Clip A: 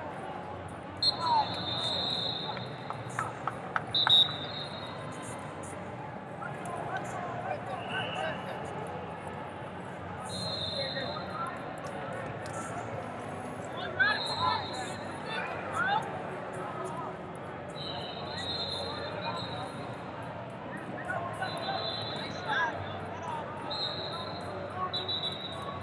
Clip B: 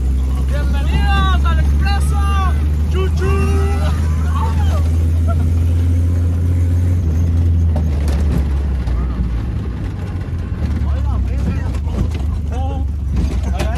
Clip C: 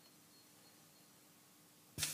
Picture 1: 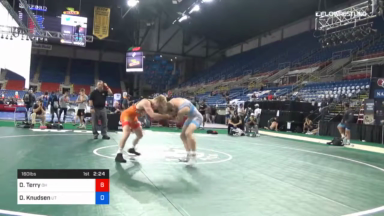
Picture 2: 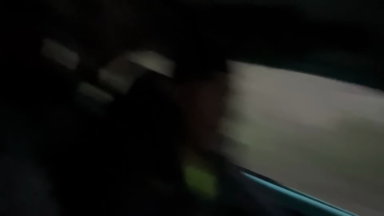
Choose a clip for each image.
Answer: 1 A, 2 B